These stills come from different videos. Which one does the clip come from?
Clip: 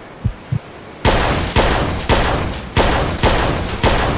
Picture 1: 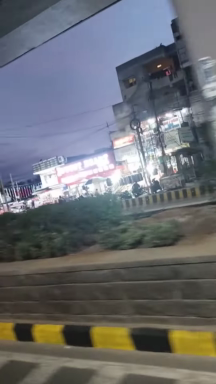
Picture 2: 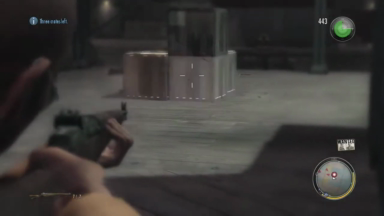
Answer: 2